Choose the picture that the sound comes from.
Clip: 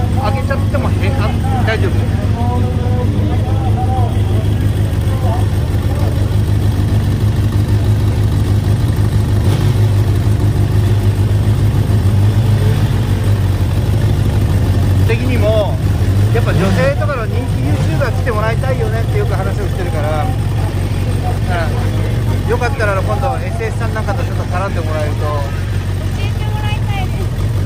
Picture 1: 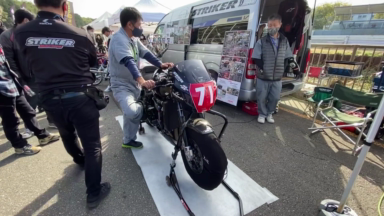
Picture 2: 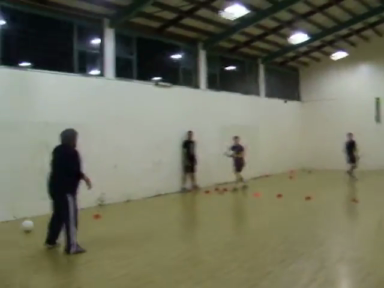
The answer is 1